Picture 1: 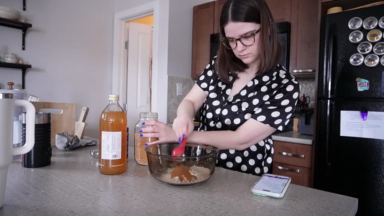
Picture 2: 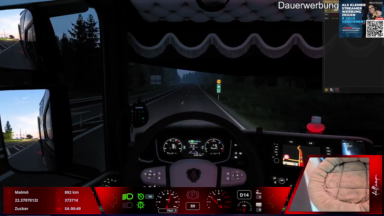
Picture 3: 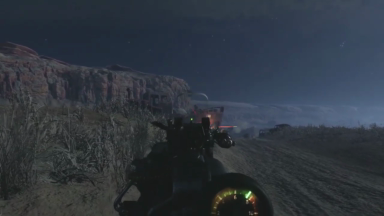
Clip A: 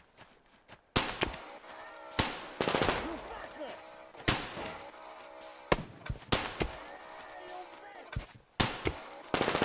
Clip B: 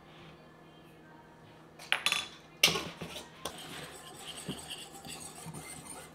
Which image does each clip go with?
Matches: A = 3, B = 1